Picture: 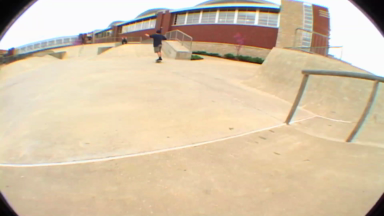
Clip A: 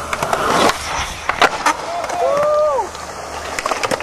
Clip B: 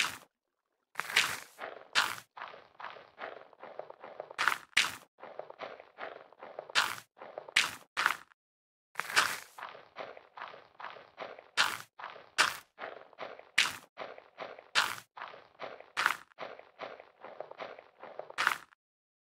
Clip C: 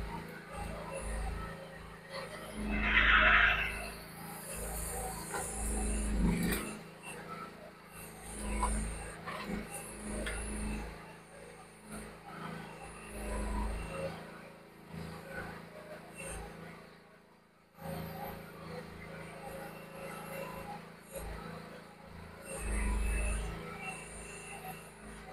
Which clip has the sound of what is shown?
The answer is A